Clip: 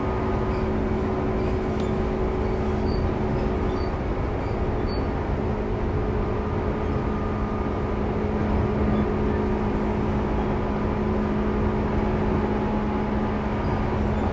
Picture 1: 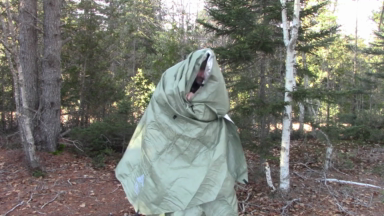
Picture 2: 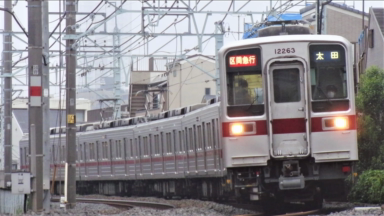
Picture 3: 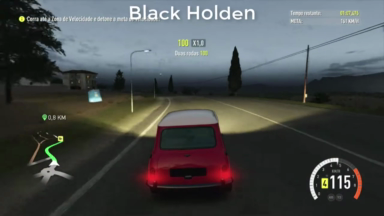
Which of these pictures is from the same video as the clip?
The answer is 2